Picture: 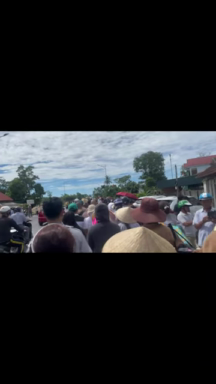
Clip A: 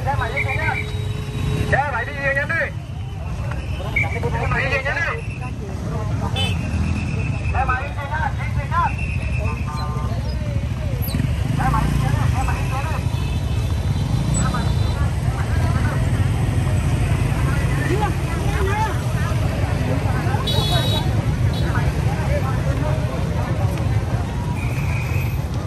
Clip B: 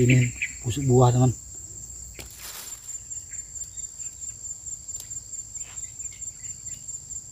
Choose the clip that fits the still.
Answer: A